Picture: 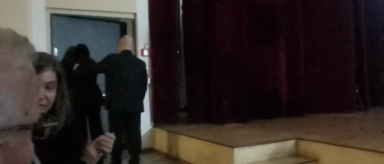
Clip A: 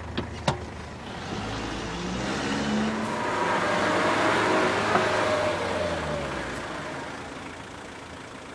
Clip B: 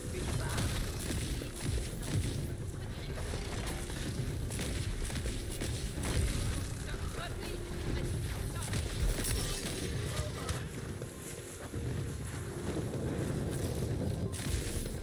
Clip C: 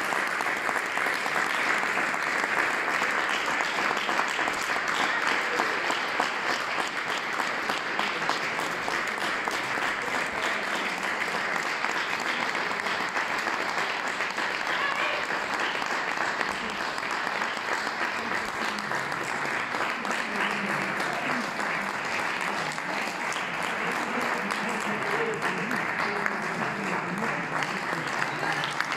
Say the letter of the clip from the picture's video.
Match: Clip C